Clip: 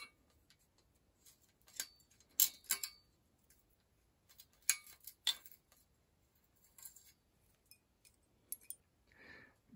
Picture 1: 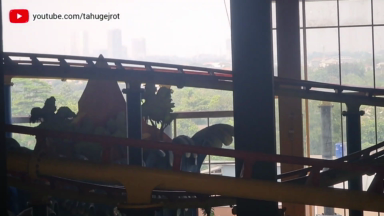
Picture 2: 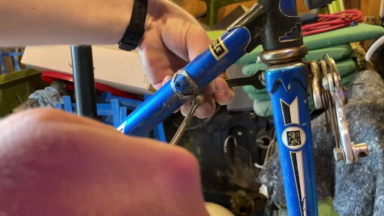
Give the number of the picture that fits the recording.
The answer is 2